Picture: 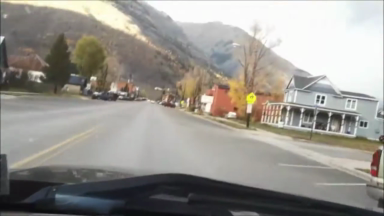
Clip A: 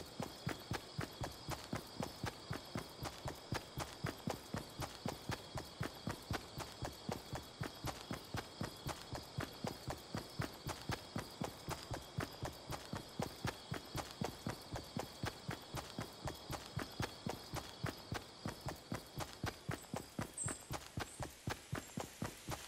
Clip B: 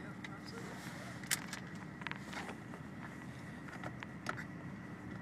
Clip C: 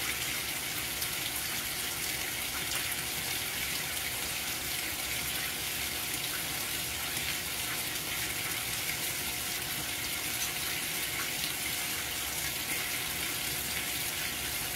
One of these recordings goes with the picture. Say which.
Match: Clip B